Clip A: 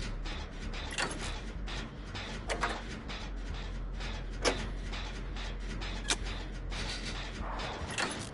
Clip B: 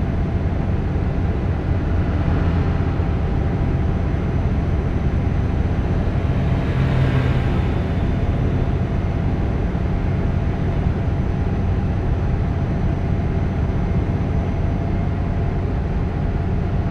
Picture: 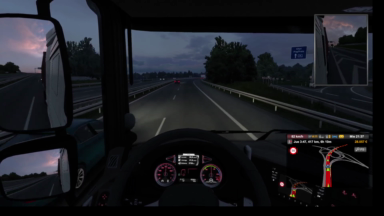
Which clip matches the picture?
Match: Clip B